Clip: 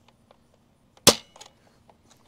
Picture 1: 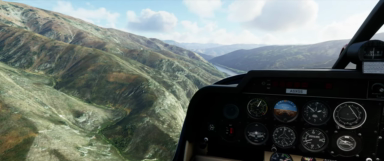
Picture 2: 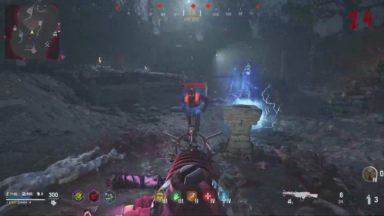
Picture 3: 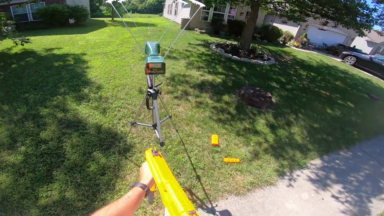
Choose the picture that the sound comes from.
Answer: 3